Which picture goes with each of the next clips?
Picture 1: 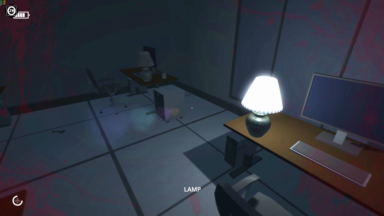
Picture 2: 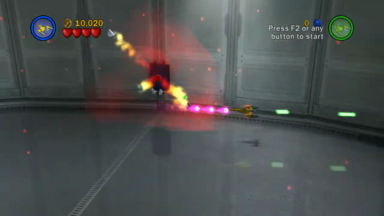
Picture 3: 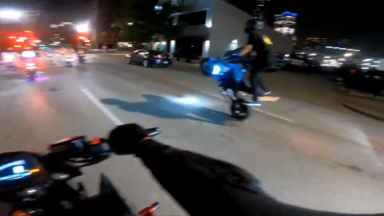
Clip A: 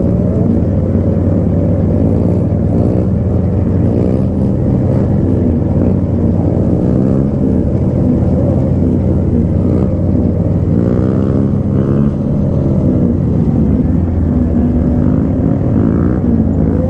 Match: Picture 3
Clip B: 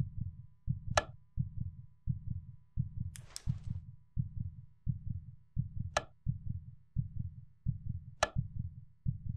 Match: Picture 1